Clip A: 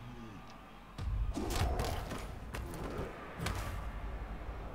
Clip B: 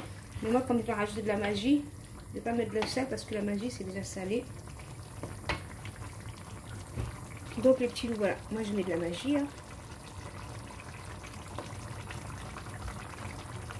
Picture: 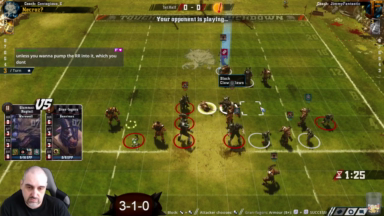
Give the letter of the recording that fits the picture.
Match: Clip A